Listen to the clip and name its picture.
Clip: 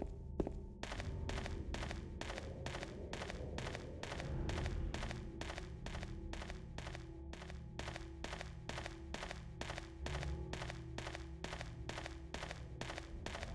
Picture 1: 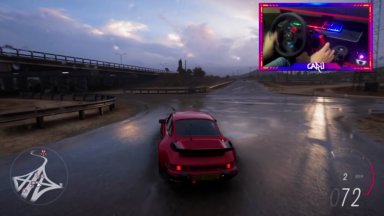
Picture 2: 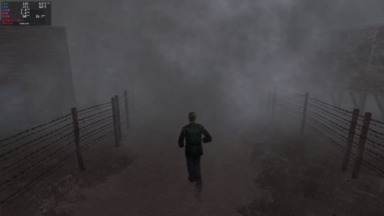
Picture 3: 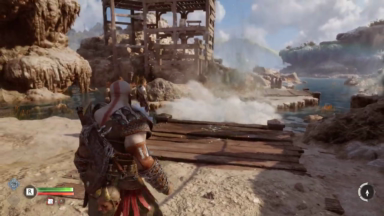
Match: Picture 2